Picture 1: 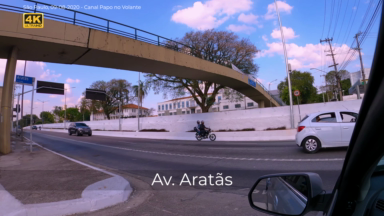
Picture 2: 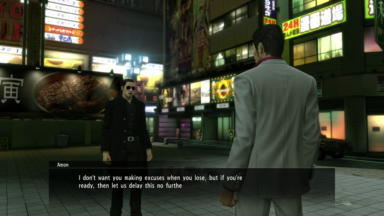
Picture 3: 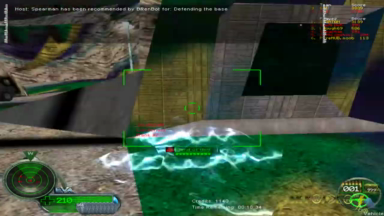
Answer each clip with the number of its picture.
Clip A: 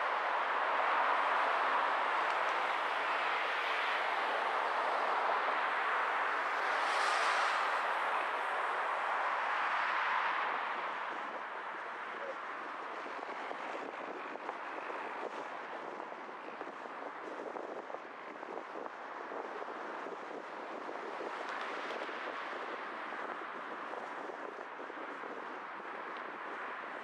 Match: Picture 1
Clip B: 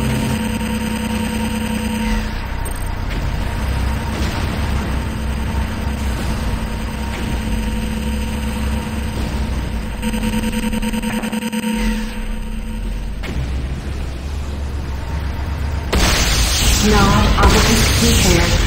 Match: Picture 3